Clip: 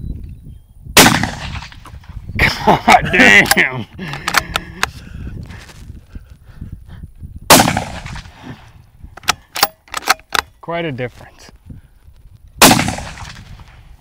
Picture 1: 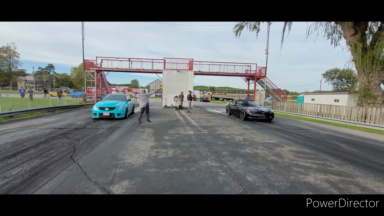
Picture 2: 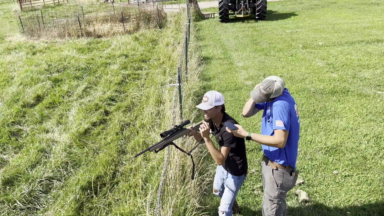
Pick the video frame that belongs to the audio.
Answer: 2